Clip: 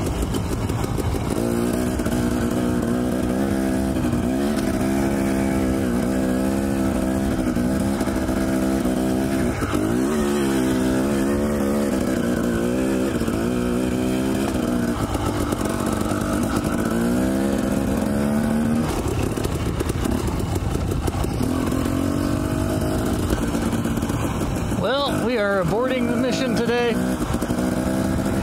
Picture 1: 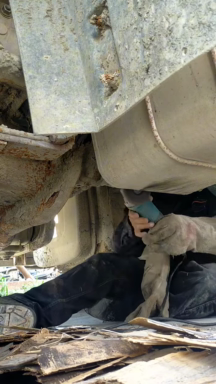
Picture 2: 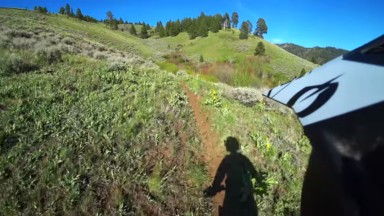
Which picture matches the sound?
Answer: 2